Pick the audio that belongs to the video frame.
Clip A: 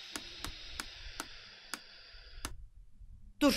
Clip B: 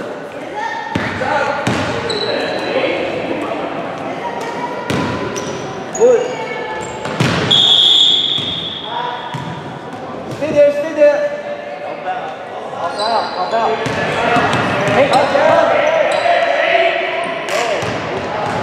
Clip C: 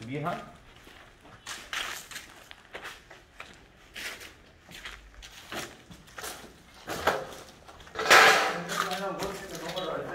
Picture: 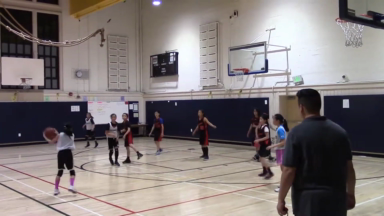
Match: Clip B